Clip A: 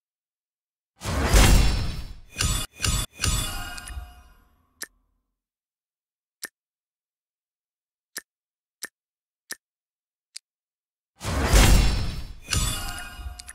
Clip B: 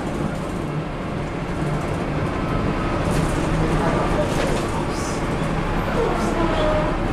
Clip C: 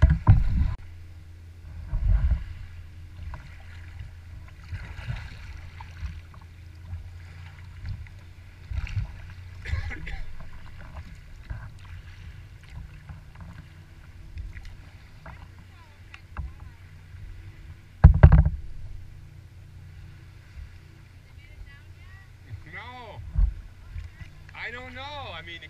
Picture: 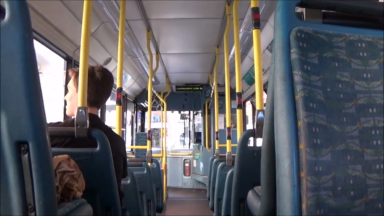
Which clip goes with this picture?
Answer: B